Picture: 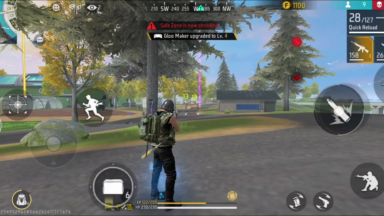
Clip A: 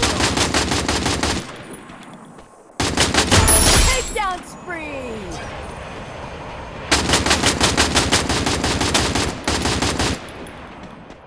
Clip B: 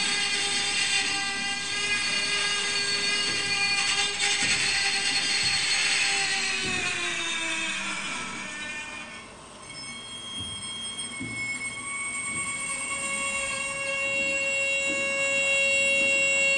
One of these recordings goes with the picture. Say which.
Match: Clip A